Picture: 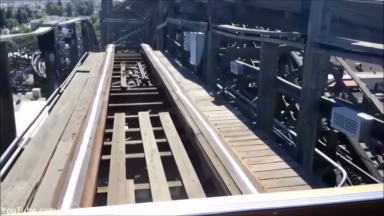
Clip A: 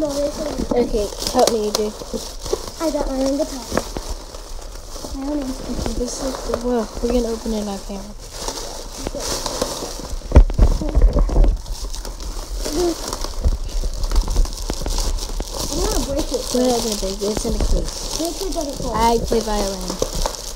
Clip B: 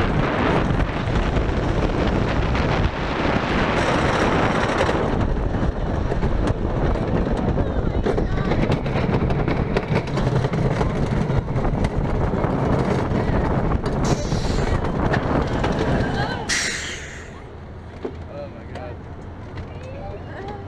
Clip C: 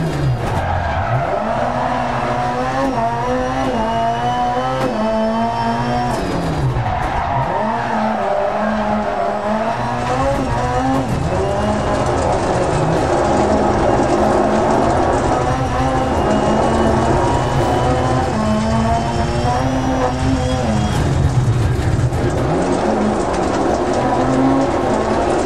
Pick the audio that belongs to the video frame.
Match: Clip B